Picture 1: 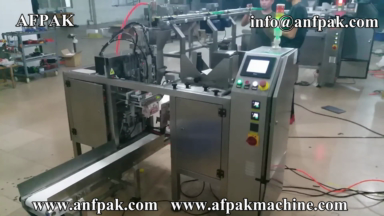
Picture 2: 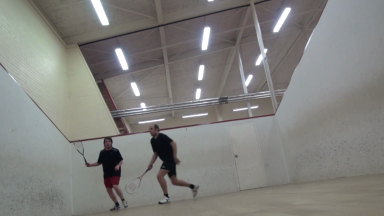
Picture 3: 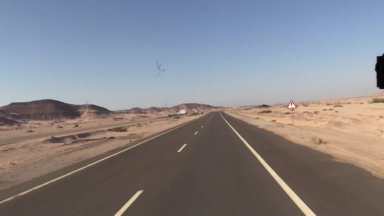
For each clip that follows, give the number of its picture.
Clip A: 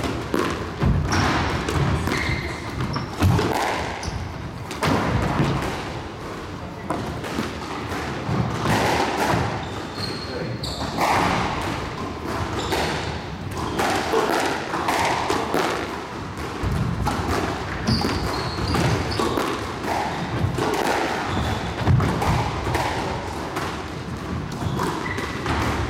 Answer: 2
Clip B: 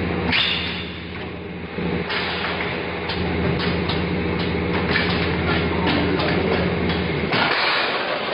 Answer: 1